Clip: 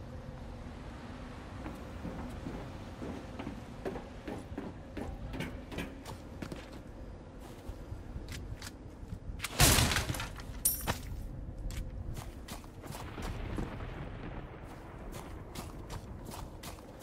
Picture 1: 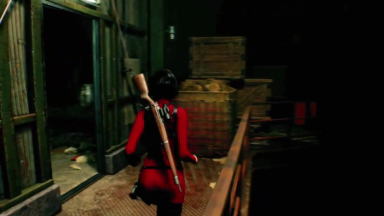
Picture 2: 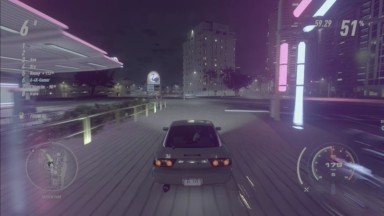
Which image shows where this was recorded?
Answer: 1